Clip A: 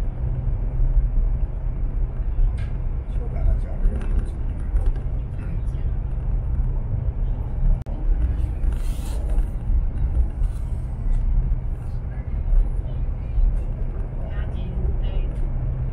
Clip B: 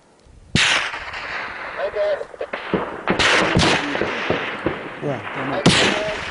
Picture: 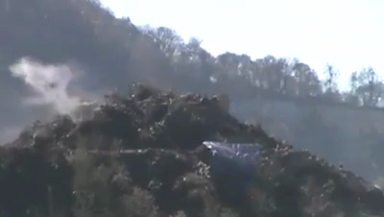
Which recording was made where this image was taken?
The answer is B